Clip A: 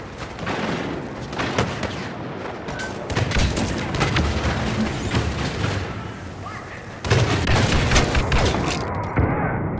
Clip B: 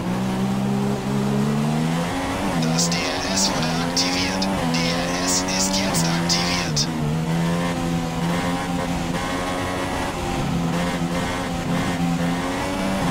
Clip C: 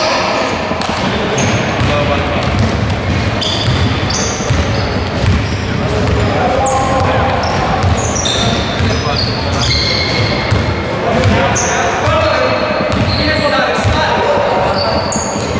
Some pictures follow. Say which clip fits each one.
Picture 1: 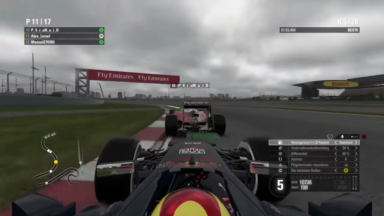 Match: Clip B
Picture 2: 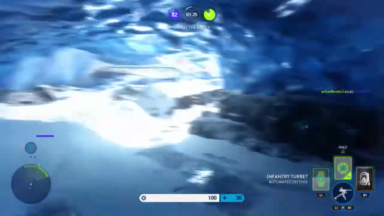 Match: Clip A